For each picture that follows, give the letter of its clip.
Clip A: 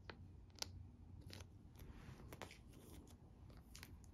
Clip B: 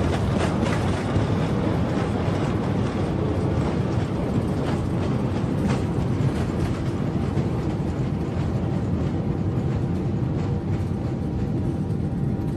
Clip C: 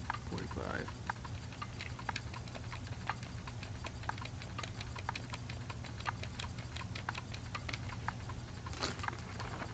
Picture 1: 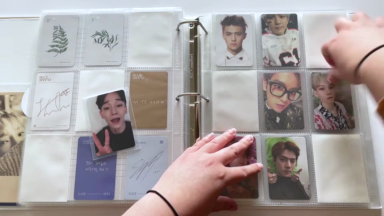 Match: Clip A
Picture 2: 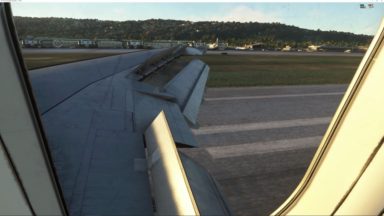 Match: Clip B